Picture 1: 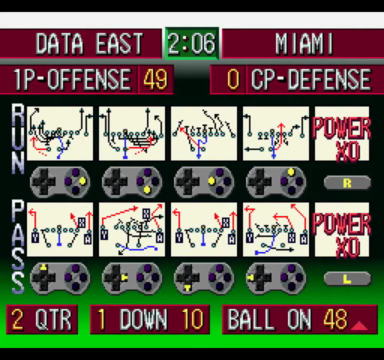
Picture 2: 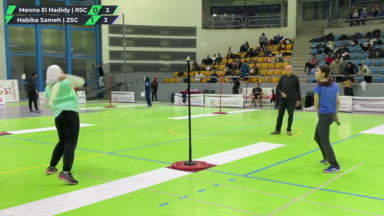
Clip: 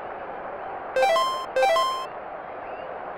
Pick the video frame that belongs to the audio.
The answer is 1